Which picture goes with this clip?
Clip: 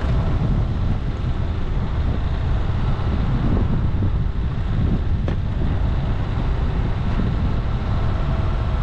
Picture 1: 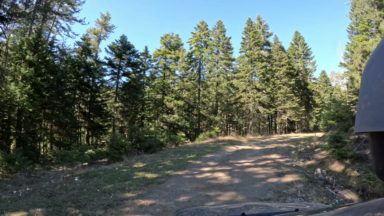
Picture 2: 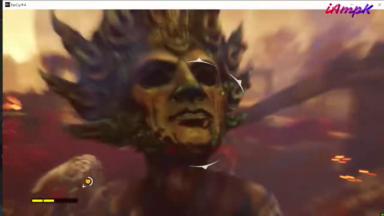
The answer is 1